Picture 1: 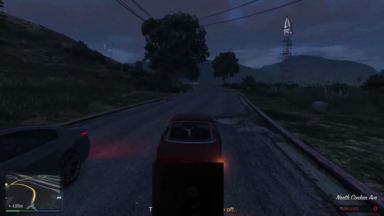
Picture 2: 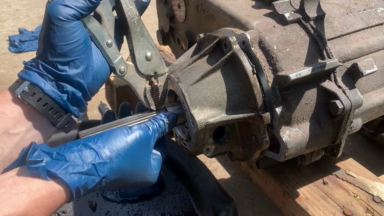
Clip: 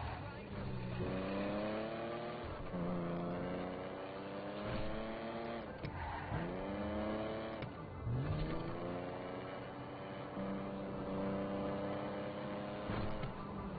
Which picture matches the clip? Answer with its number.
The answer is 1